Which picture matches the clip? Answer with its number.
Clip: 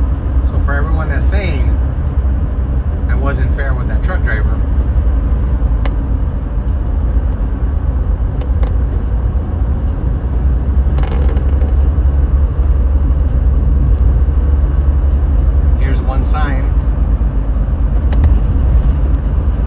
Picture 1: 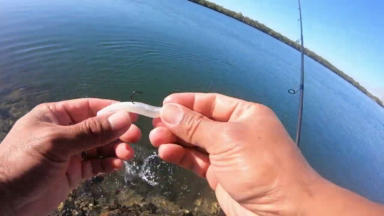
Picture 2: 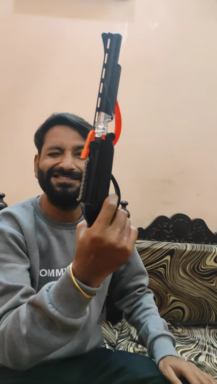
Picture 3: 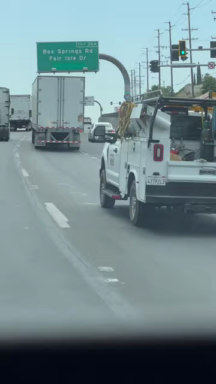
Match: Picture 3